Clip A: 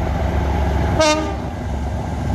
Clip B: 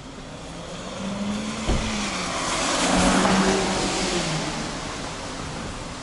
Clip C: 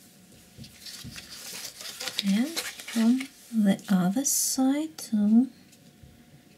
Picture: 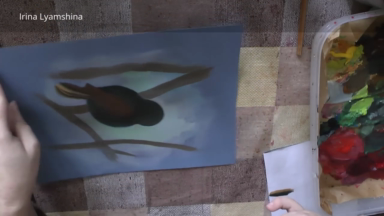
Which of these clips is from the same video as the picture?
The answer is C